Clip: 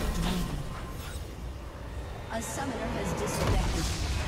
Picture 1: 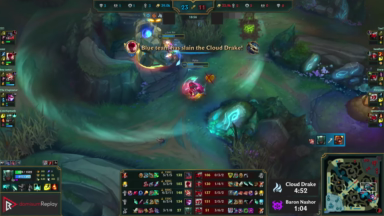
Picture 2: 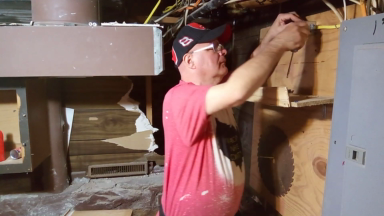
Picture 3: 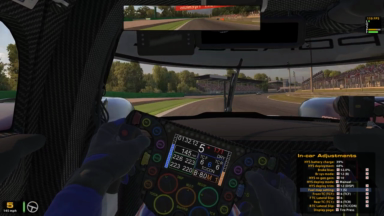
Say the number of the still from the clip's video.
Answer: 1